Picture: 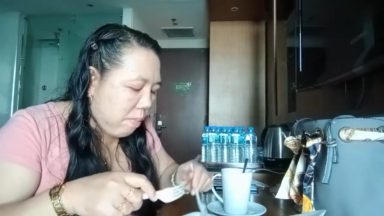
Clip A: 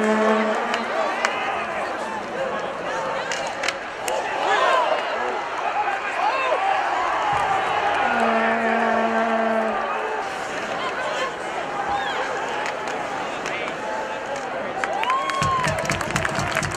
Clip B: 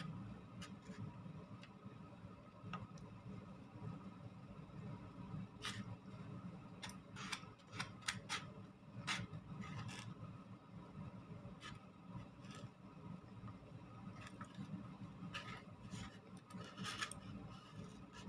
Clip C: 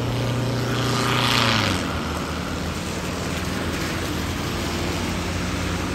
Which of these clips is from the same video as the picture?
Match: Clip B